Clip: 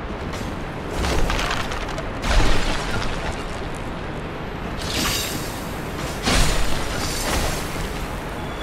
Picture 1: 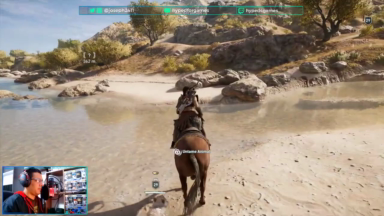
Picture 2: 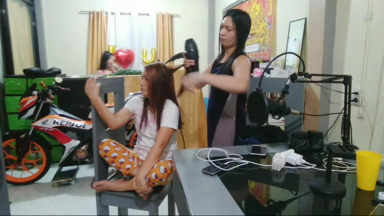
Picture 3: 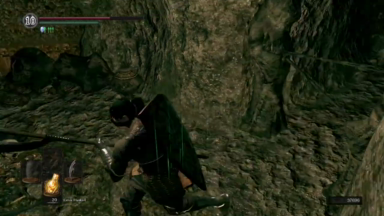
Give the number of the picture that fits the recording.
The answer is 3